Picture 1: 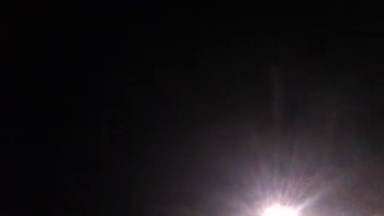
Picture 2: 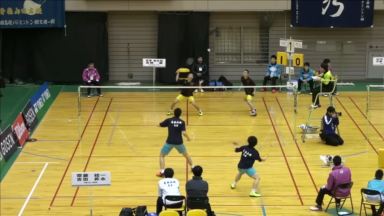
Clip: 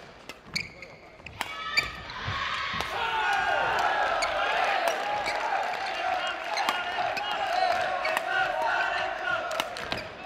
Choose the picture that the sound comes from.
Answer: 2